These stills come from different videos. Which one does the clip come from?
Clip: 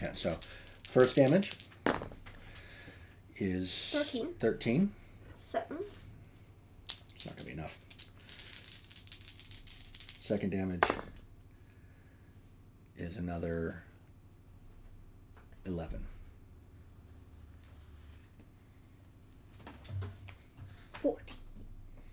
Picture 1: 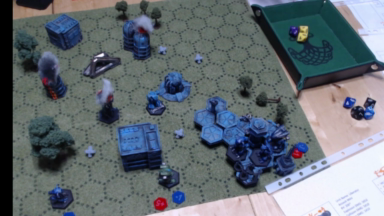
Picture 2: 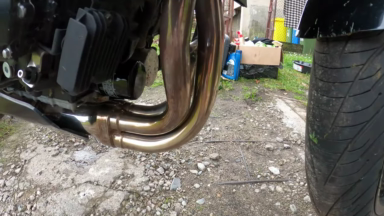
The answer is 1